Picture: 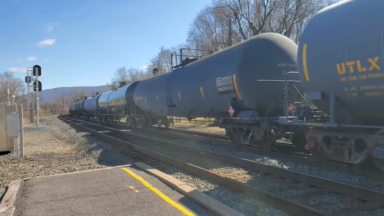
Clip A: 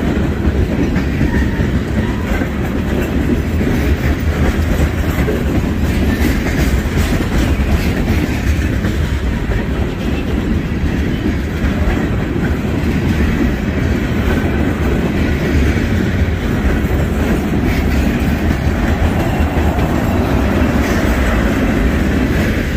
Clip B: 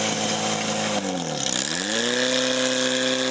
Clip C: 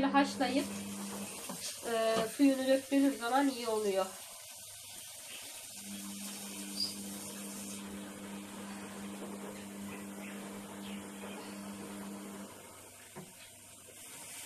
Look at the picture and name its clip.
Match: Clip A